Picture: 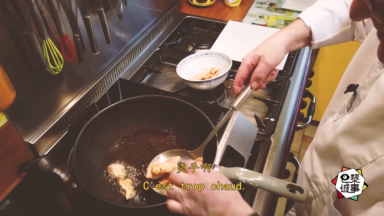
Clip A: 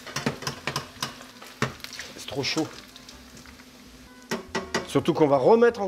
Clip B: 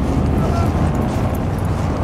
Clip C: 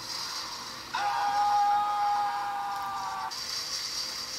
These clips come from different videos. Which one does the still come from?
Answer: A